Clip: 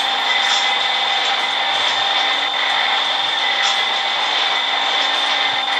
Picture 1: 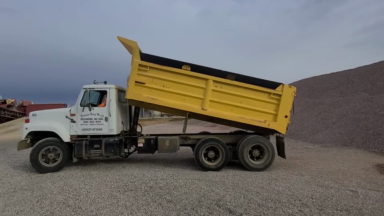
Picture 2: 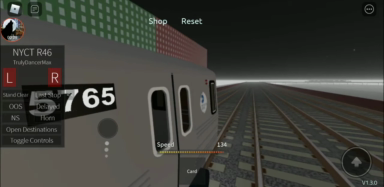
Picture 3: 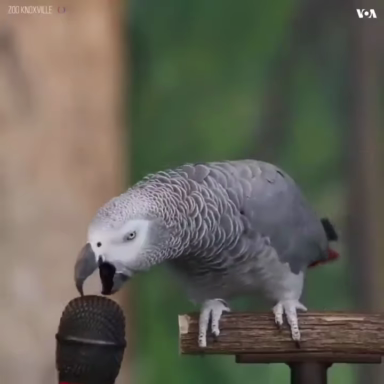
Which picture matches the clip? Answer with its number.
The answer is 2